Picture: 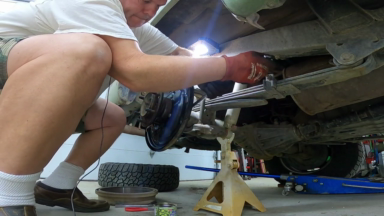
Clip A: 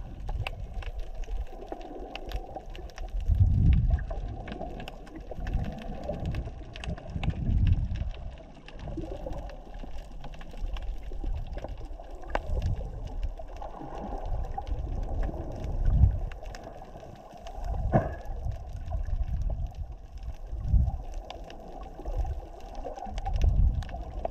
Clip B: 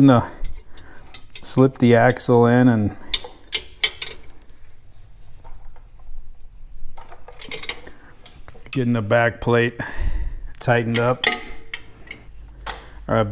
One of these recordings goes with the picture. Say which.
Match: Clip B